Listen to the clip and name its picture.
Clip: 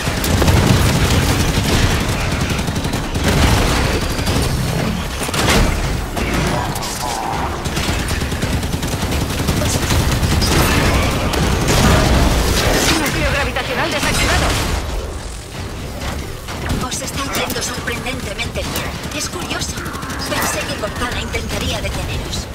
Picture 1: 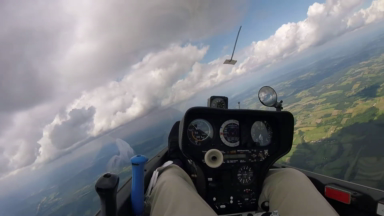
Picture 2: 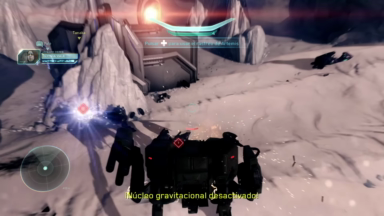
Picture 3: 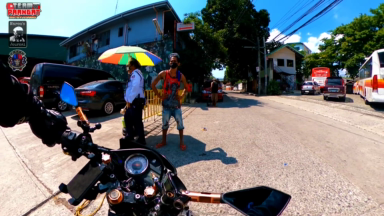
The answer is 2